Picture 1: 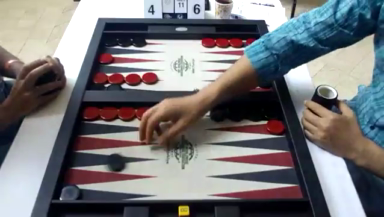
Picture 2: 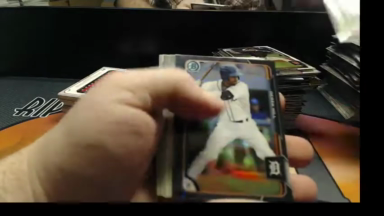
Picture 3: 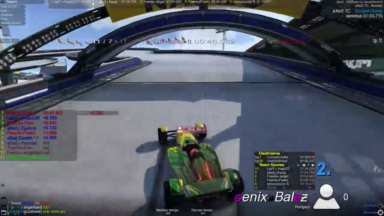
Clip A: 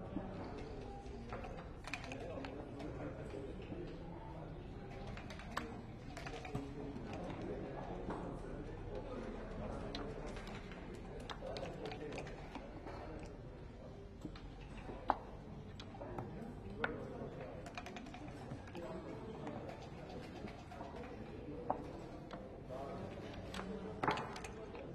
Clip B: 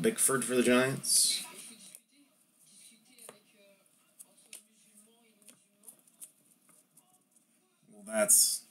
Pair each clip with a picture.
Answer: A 1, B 2